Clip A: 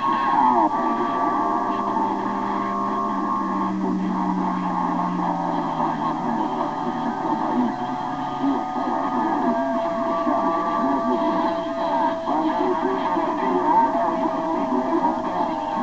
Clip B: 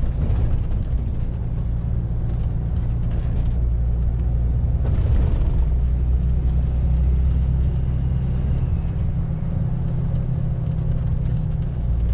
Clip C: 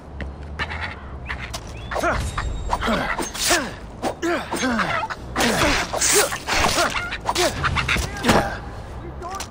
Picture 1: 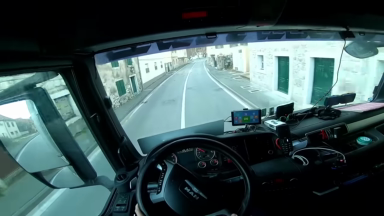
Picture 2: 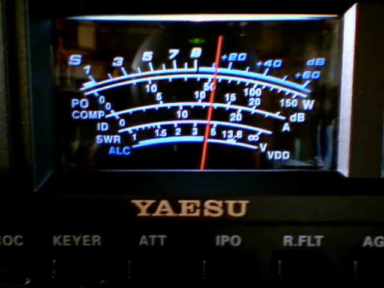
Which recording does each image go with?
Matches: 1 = B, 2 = A